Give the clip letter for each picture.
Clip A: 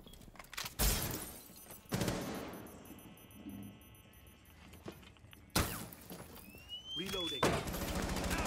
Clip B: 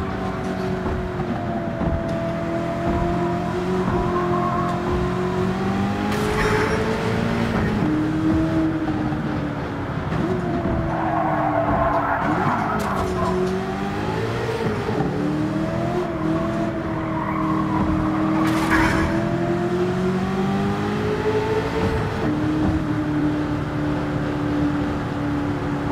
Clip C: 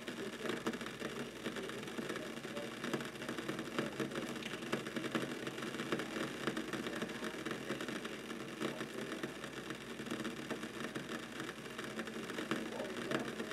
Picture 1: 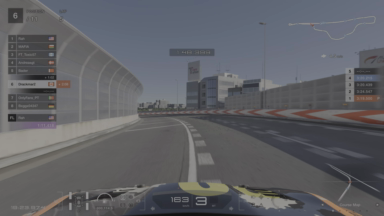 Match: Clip B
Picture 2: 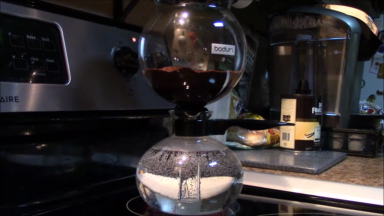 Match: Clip C